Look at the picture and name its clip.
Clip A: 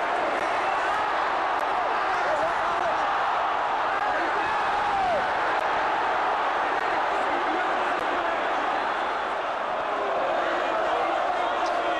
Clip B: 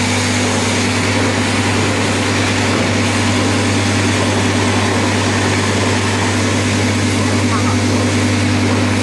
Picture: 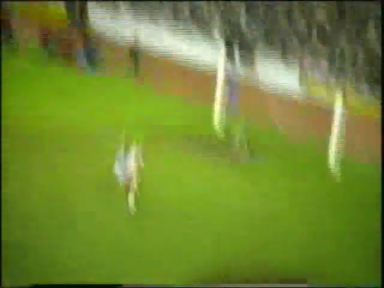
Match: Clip A